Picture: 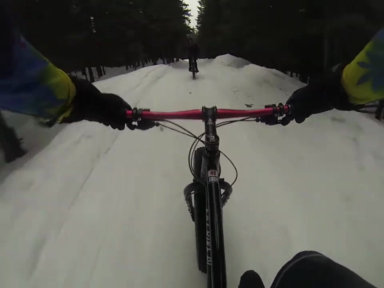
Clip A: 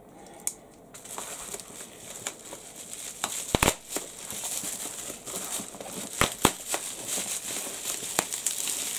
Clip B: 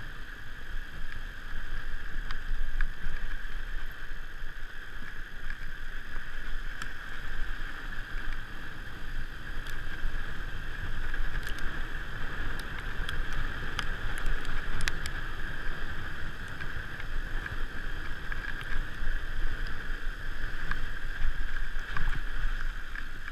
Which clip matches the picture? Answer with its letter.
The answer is B